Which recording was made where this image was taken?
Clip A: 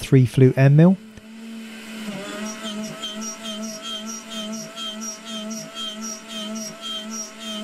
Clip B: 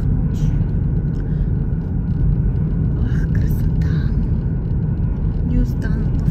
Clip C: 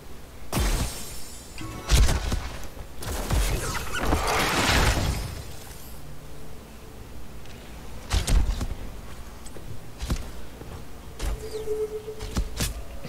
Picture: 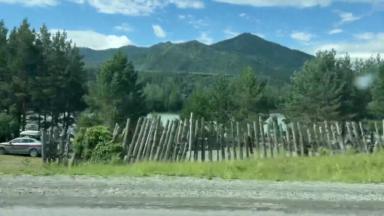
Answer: B